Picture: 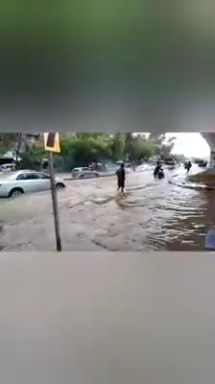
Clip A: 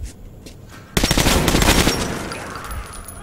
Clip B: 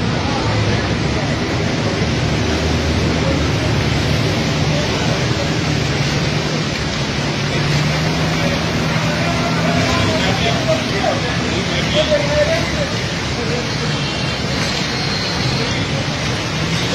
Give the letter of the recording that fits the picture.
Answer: B